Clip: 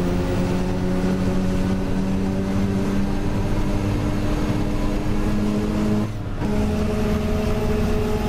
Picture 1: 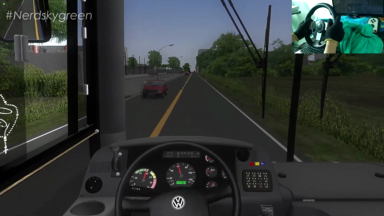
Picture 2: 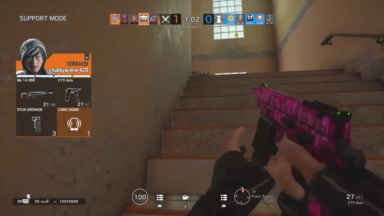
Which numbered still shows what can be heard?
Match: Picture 1